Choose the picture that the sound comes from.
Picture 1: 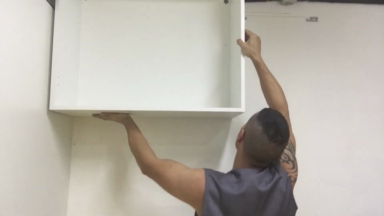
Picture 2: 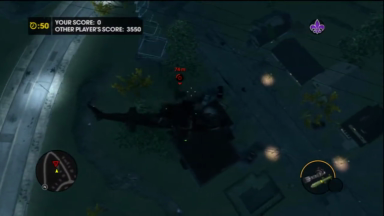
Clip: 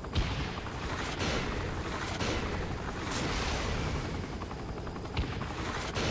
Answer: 2